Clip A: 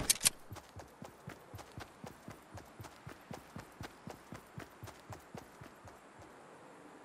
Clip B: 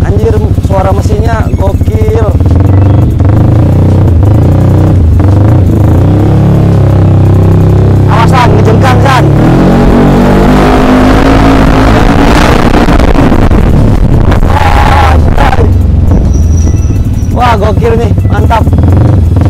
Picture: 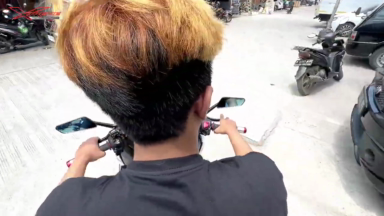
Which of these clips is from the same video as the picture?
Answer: B